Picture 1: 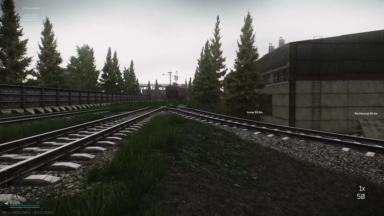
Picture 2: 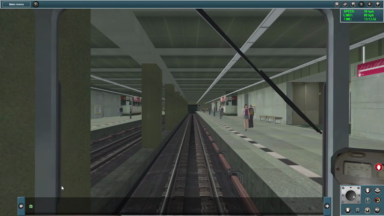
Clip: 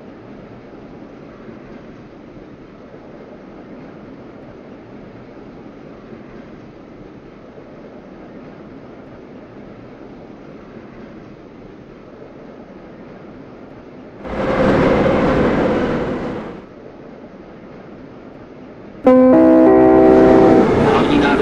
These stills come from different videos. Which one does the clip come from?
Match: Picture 2